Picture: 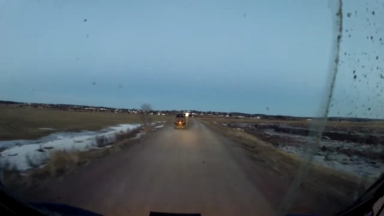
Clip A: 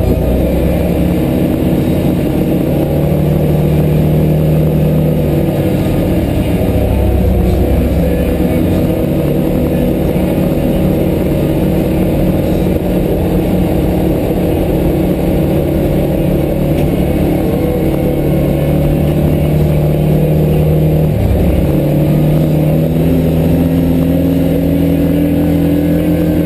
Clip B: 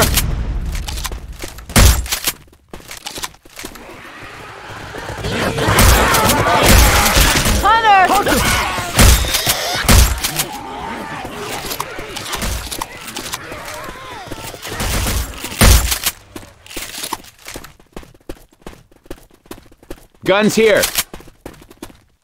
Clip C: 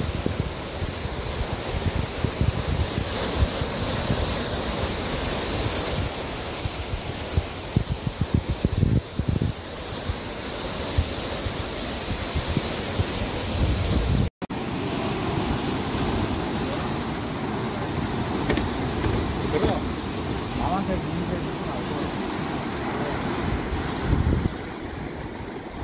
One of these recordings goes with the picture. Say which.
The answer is A